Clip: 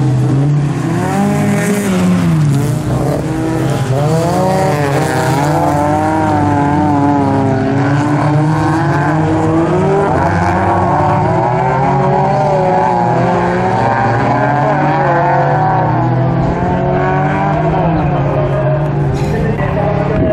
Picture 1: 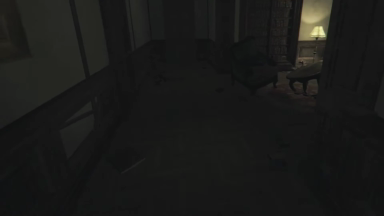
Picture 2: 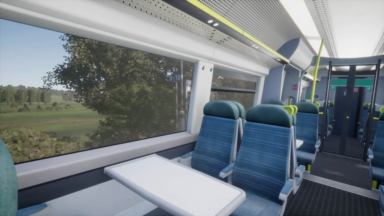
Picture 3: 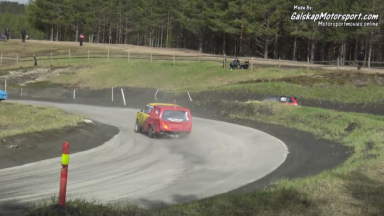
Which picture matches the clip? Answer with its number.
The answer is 3